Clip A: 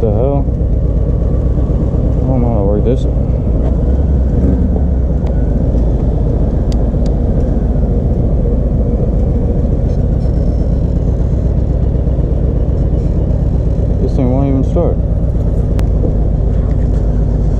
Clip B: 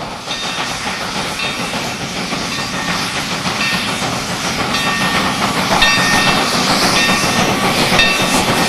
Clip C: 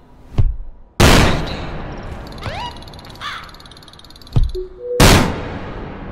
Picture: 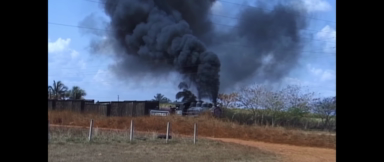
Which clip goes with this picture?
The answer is B